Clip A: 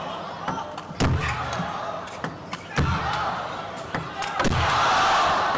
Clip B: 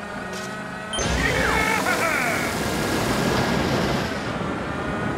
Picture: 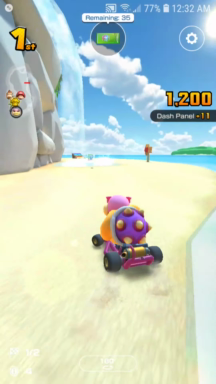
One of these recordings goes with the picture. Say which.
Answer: B